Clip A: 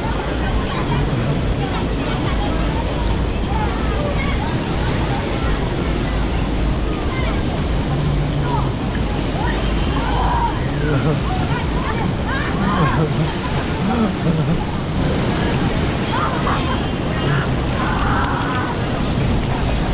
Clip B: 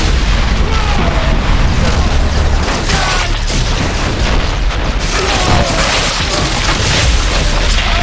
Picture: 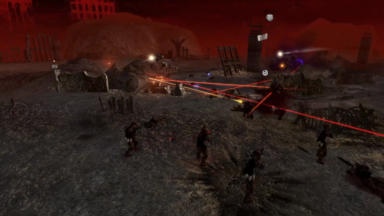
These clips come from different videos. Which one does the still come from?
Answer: B